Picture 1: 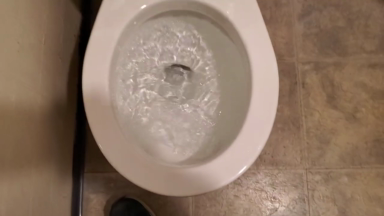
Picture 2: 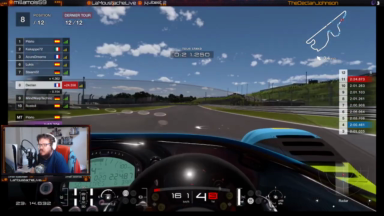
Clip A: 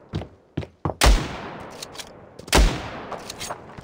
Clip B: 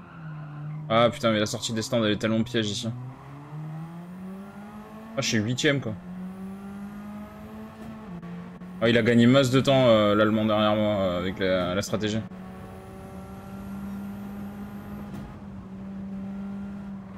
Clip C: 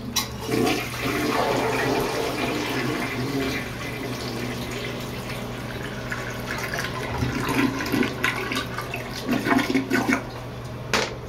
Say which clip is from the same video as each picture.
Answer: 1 C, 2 B